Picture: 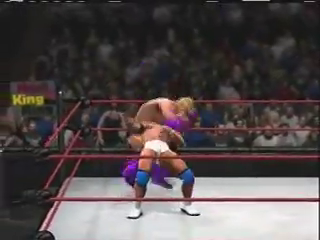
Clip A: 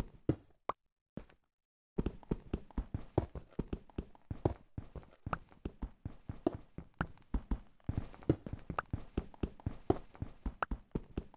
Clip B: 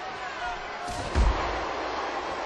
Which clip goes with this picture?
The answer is B